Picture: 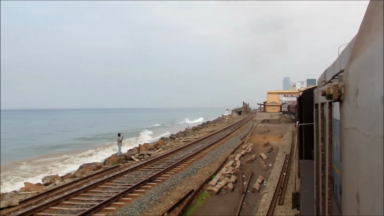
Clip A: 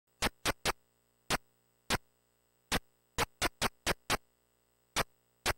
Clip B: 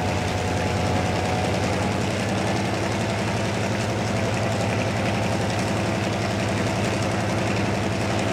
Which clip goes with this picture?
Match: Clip B